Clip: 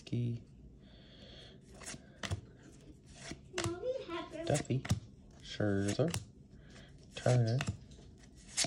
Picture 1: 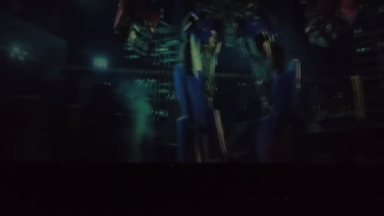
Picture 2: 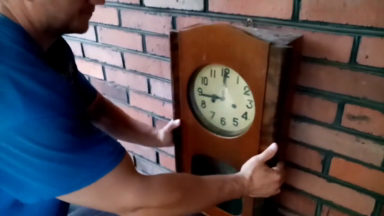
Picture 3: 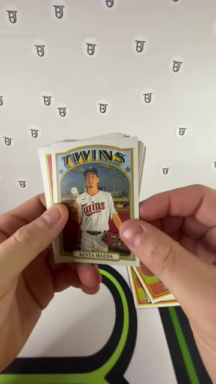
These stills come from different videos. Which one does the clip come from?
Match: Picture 3